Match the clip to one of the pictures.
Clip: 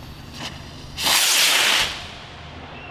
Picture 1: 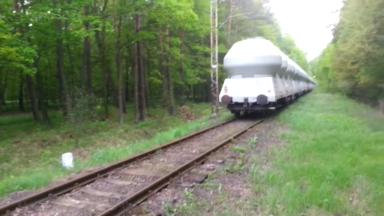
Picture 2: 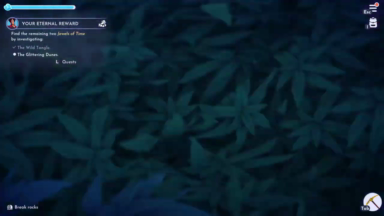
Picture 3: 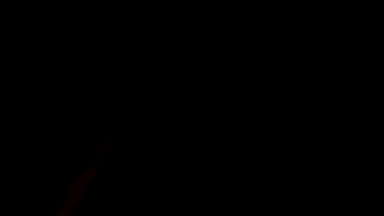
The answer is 3